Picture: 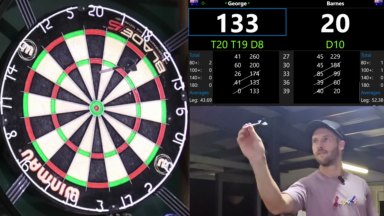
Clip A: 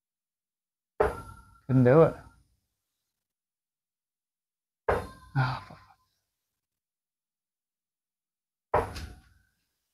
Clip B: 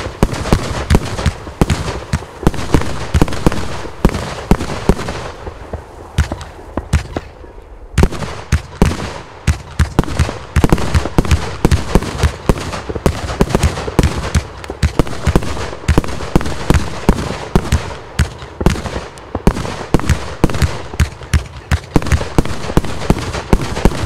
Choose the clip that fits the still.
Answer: A